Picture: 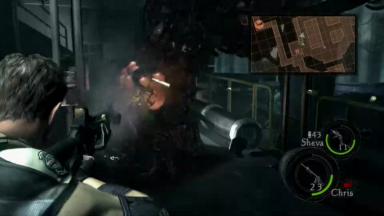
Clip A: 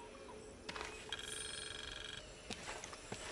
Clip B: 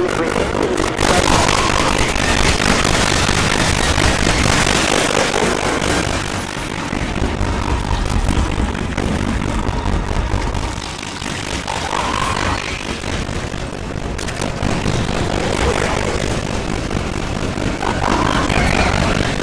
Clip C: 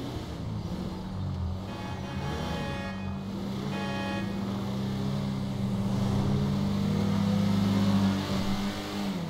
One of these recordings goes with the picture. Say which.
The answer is B